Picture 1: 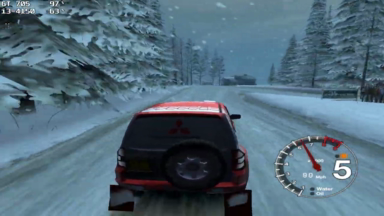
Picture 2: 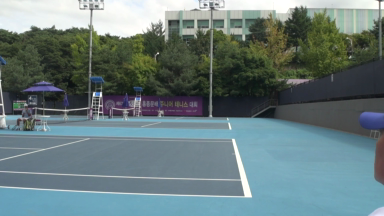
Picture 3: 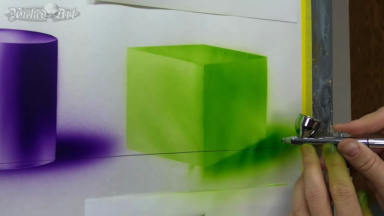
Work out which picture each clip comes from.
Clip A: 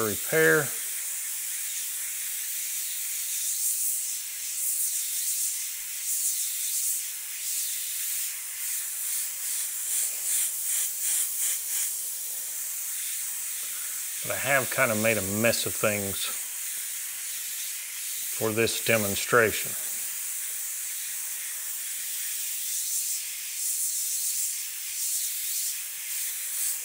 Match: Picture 3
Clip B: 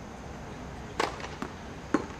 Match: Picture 2